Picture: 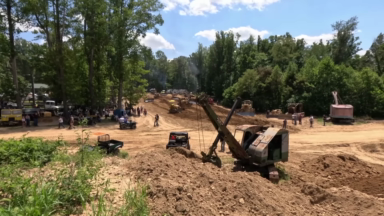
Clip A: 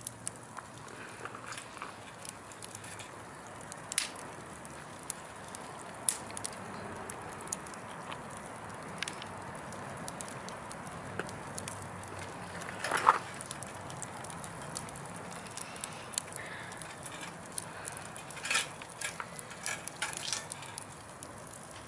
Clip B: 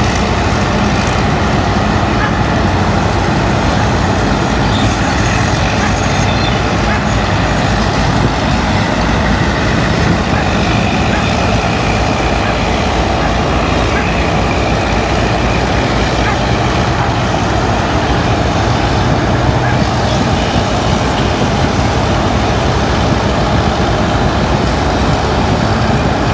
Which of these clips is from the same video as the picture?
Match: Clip B